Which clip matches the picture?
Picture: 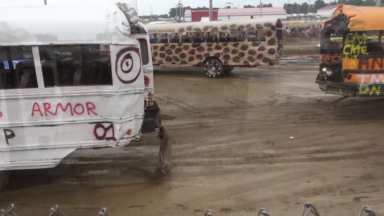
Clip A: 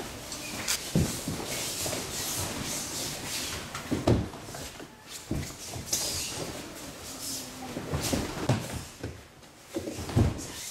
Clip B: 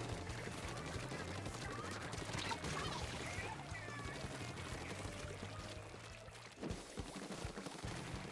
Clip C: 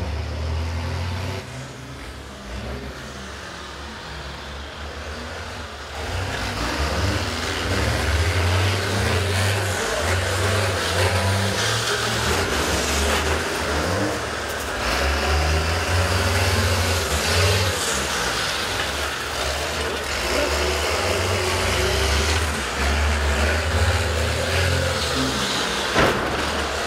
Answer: C